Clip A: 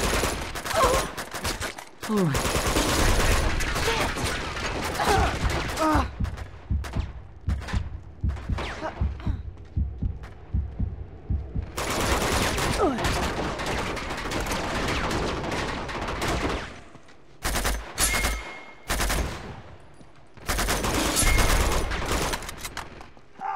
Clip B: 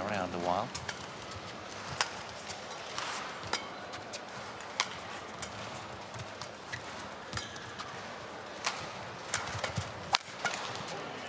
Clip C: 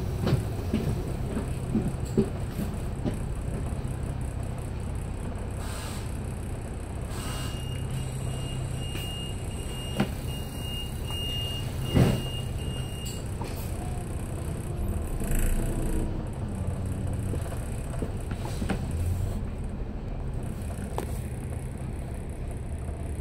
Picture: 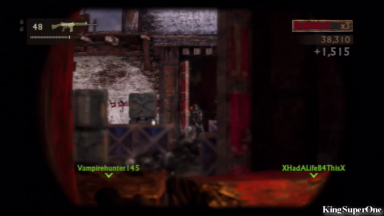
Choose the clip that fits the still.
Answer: A